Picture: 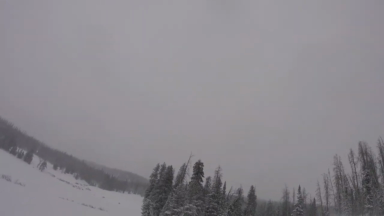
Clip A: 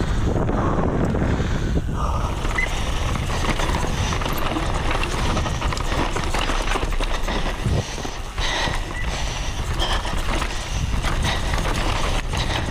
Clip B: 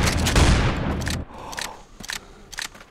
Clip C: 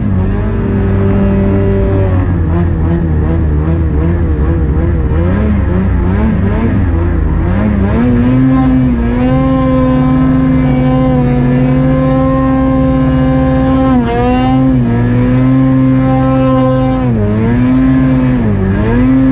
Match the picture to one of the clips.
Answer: C